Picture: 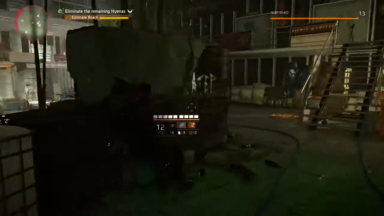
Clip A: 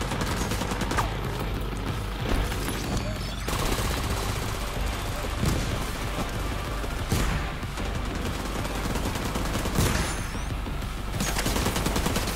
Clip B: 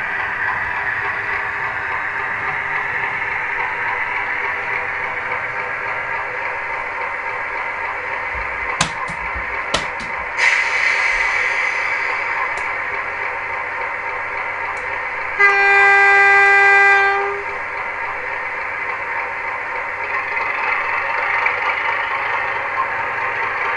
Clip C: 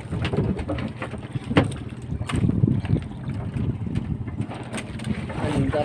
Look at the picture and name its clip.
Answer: A